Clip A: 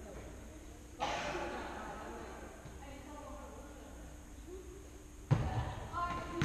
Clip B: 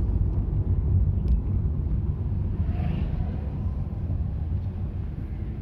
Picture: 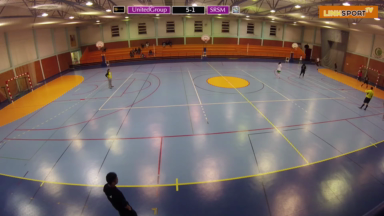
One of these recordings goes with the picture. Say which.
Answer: A